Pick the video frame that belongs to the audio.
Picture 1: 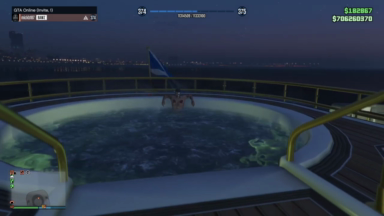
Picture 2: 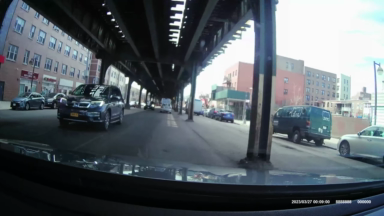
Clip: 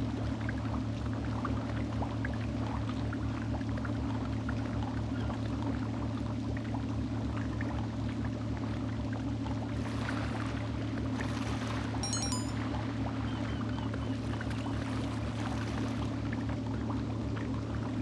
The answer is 1